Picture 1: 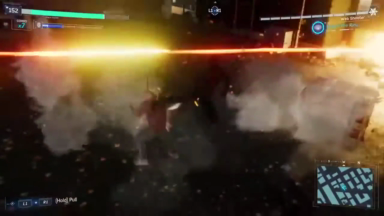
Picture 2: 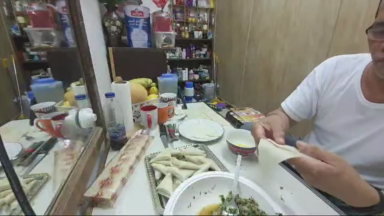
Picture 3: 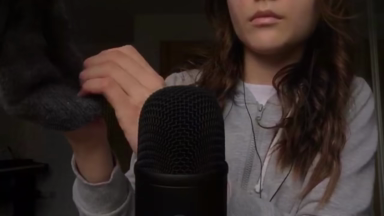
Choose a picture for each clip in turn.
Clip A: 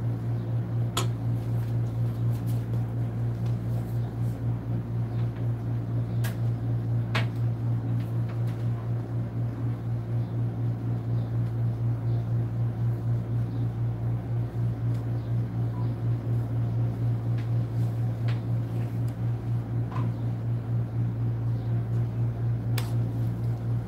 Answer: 2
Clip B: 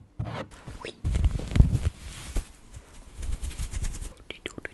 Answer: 3